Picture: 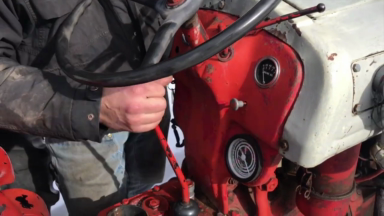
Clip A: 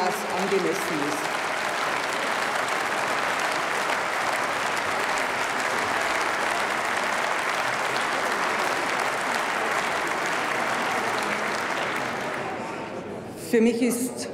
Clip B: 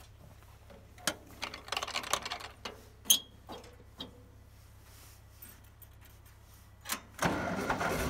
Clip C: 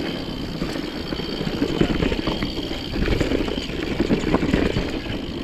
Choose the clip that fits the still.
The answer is B